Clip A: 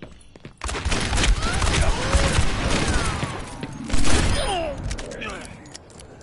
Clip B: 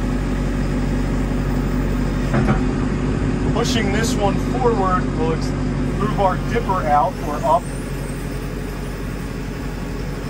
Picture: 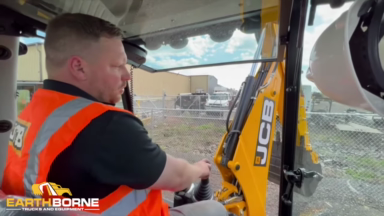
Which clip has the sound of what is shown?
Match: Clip B